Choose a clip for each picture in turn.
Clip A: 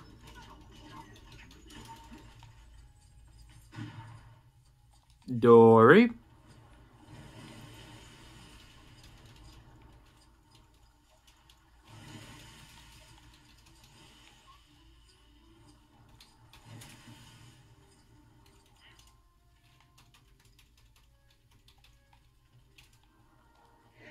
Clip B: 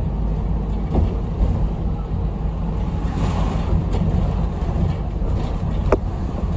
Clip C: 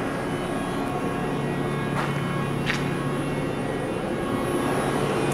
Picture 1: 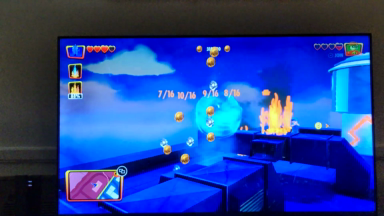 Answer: A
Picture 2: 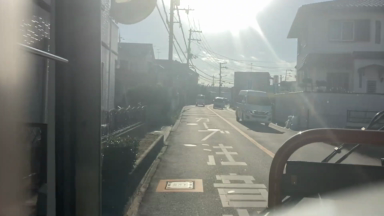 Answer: B